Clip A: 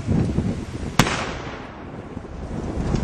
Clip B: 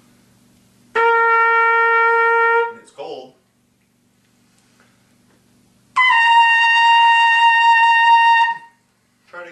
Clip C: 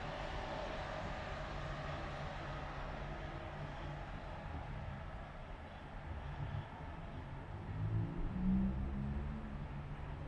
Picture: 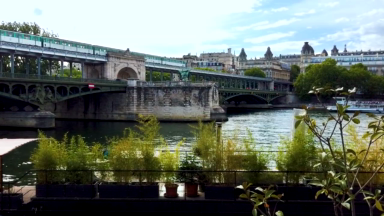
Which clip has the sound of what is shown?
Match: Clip C